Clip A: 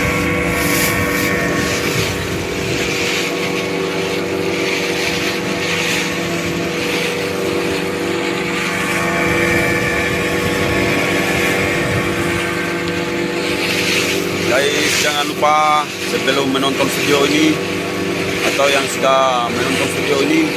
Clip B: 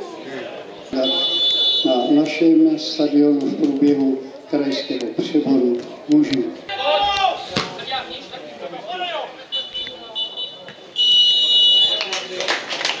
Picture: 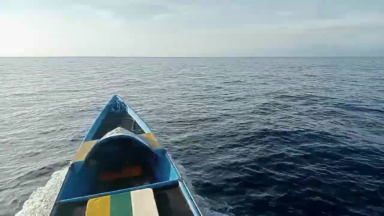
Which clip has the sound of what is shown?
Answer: A